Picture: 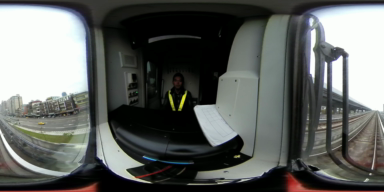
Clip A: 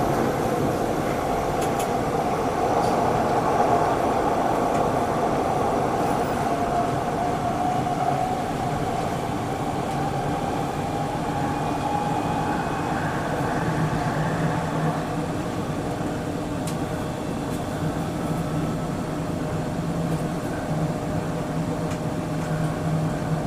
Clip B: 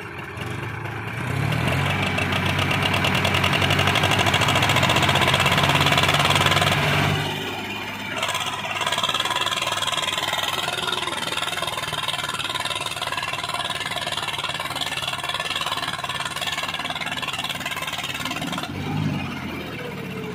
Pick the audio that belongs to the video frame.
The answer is A